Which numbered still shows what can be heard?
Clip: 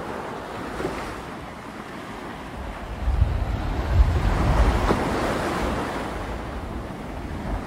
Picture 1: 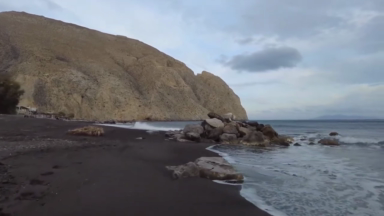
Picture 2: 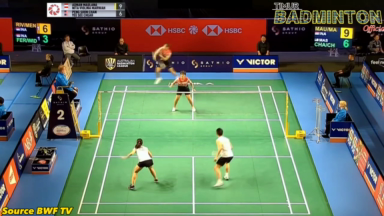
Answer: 1